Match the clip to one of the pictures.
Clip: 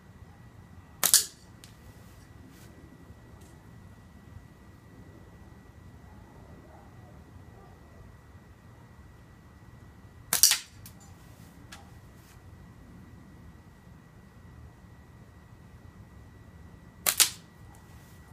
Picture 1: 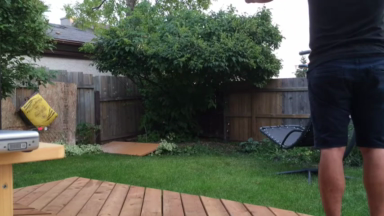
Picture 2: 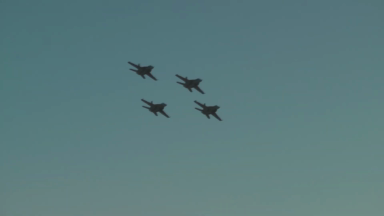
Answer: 1